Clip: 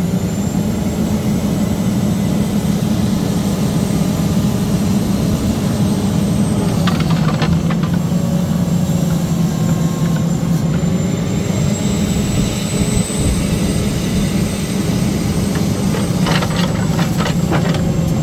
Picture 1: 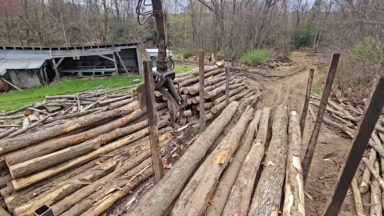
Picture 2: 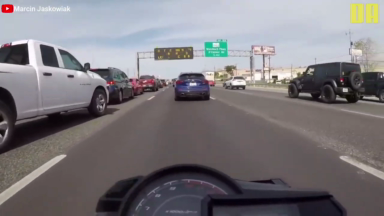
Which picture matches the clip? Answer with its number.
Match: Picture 1